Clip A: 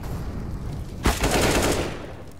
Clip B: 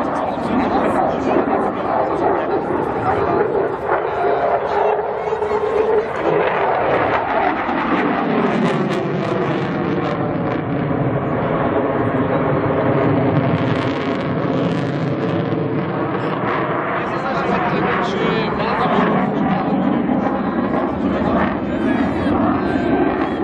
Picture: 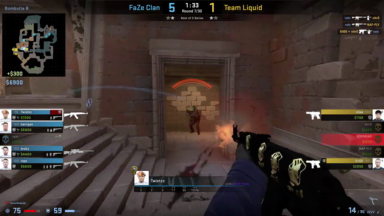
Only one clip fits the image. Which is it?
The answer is A